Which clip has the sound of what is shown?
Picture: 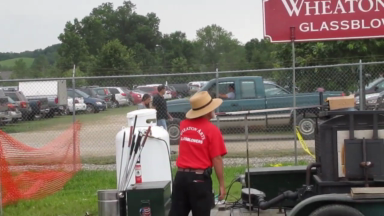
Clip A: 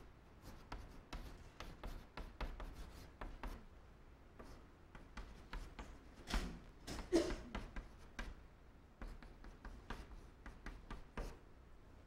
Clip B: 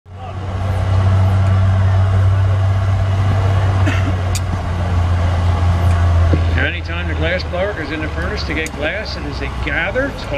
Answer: B